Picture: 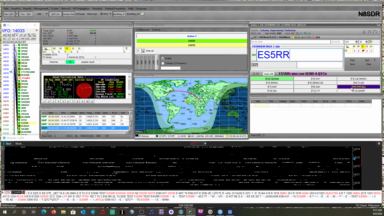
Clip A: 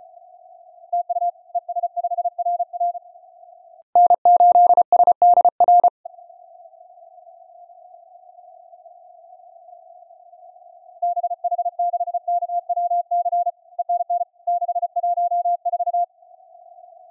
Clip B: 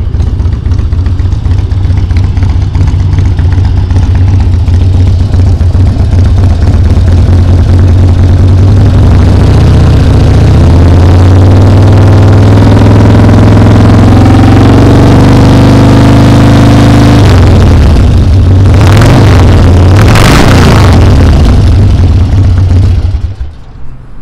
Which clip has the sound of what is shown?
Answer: A